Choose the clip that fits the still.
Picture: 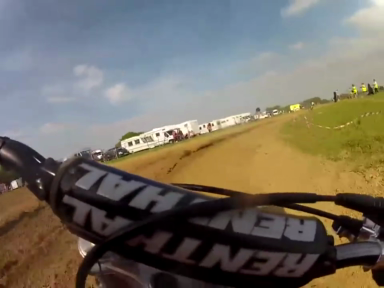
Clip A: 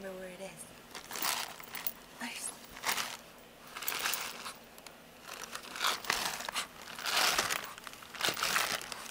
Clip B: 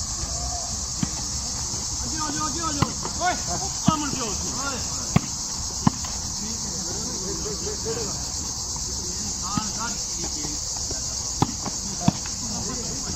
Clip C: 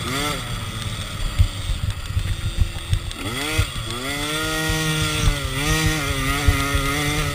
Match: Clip C